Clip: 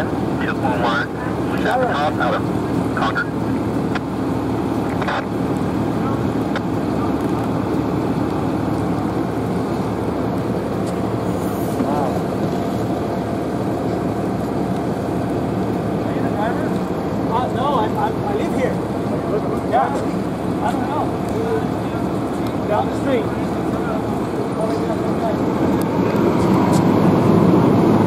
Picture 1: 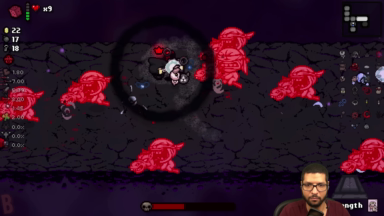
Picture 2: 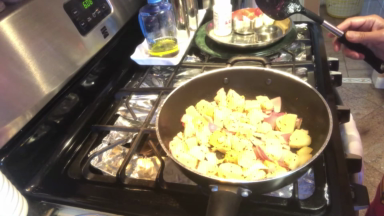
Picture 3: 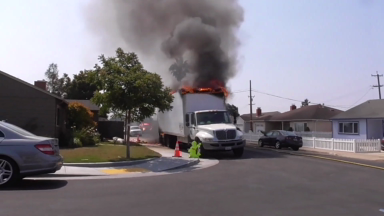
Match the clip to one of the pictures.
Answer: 3